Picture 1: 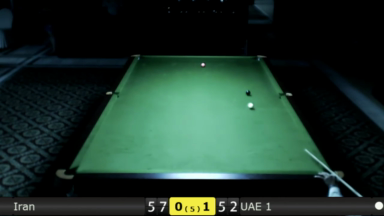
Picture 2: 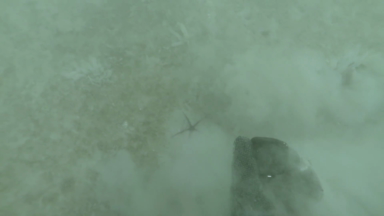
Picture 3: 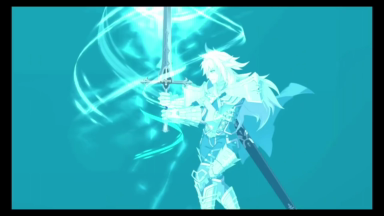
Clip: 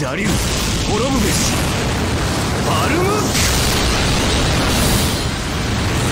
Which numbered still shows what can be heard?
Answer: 3